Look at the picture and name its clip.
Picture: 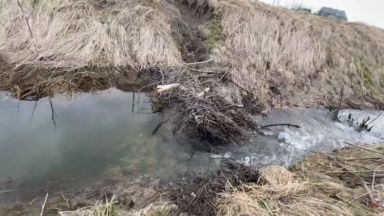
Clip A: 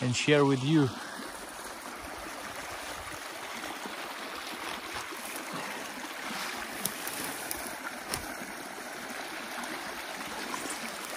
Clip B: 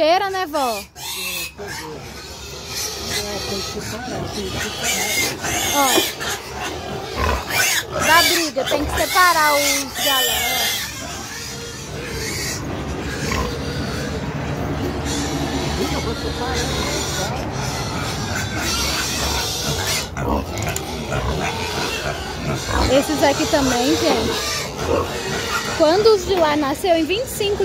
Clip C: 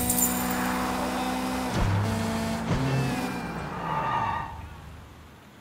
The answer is A